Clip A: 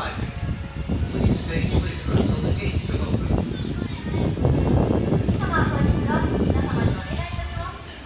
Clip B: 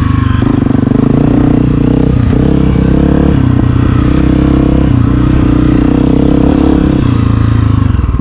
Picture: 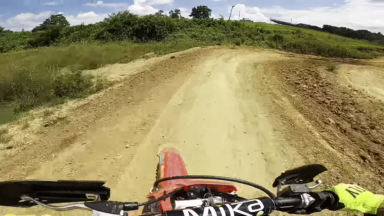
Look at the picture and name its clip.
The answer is B